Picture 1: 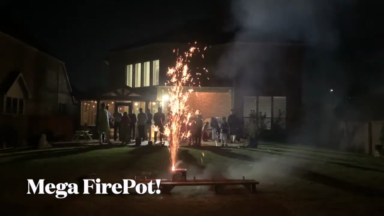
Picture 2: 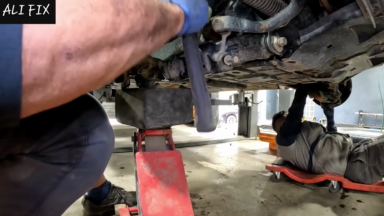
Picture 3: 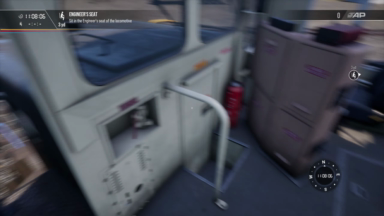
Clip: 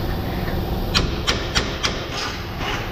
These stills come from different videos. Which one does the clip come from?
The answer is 2